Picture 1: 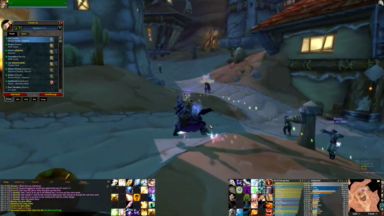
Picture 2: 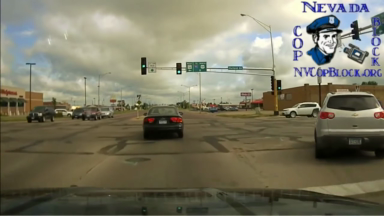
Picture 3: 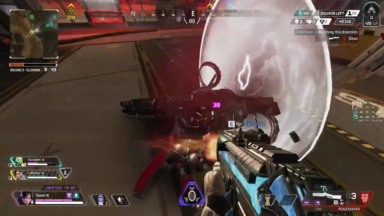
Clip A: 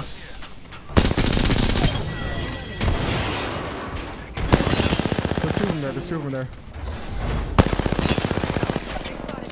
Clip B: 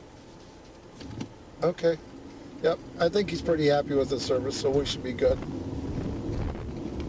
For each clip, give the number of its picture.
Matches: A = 3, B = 2